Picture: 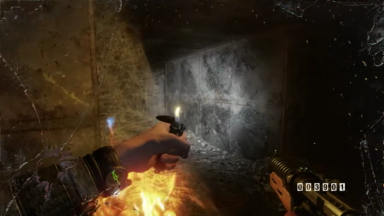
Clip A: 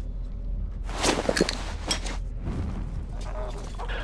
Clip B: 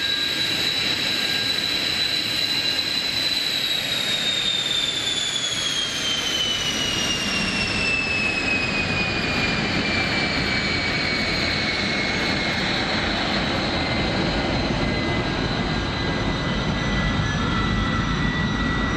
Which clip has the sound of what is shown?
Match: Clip A